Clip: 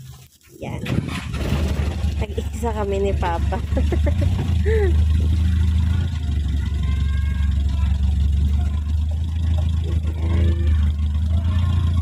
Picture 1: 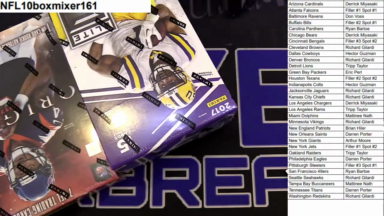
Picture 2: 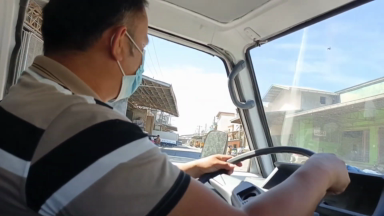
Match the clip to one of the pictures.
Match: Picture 2